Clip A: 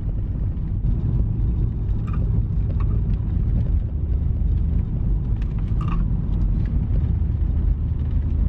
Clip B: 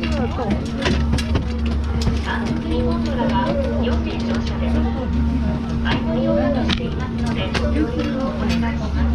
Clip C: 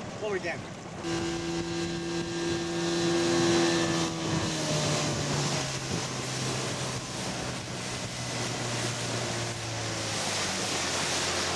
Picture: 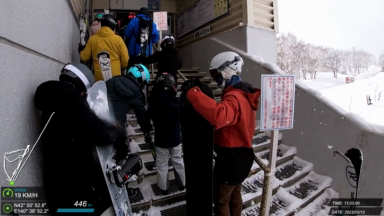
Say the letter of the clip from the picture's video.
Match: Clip B